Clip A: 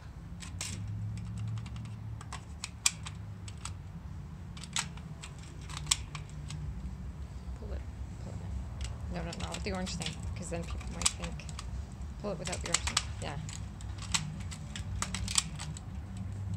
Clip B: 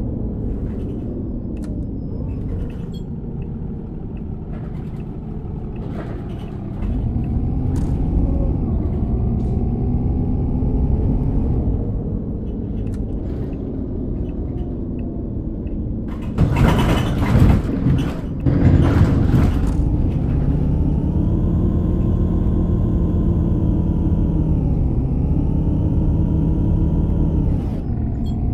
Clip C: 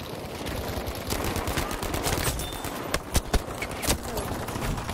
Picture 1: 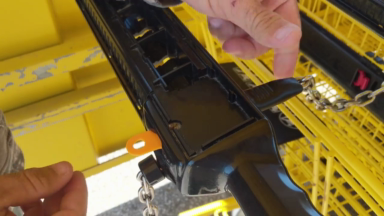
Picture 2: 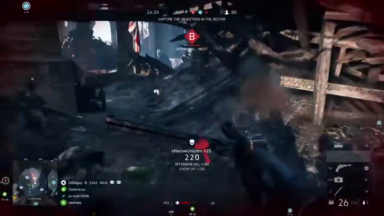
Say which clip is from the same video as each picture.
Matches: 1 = A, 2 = C